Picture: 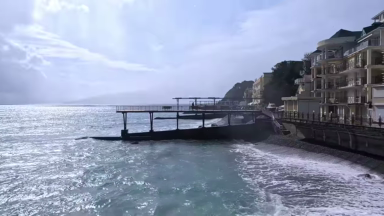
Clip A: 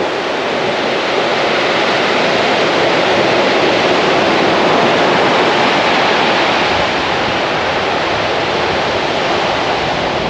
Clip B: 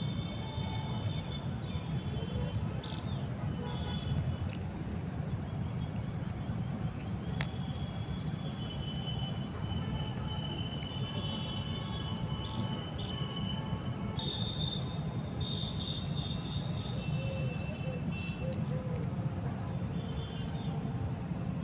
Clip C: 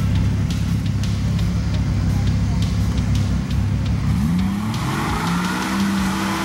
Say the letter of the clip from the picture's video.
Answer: A